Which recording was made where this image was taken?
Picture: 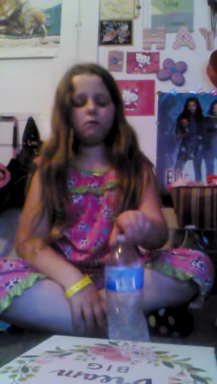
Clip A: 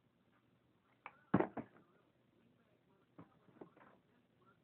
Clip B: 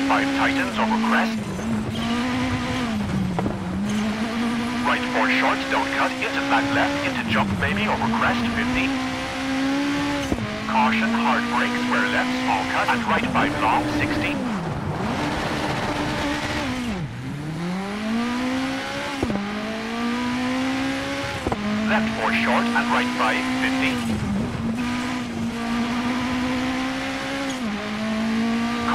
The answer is A